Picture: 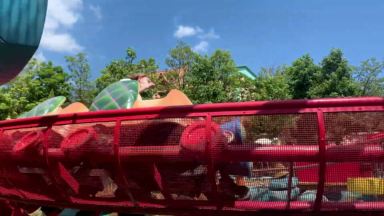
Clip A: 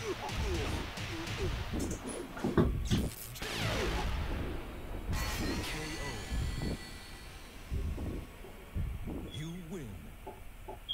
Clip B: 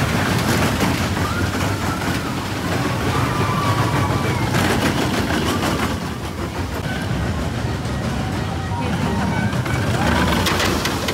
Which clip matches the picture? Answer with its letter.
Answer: B